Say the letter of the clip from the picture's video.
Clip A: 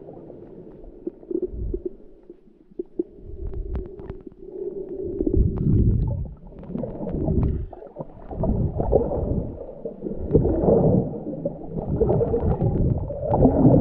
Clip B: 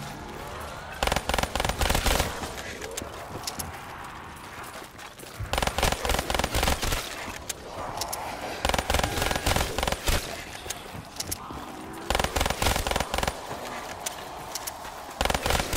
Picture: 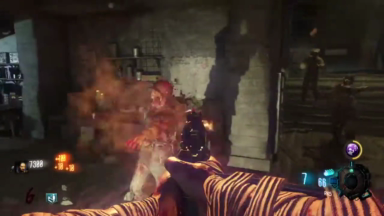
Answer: B